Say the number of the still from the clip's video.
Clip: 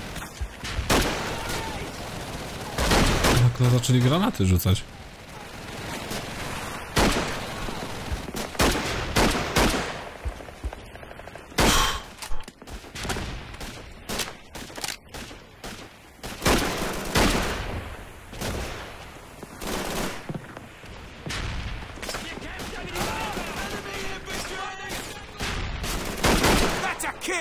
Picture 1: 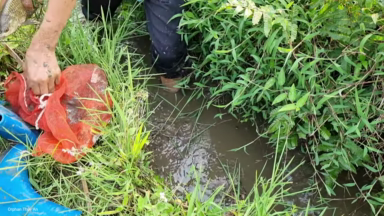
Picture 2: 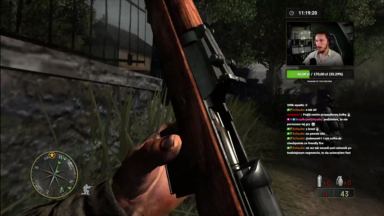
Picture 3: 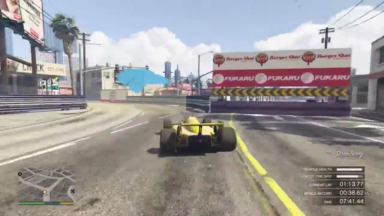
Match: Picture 2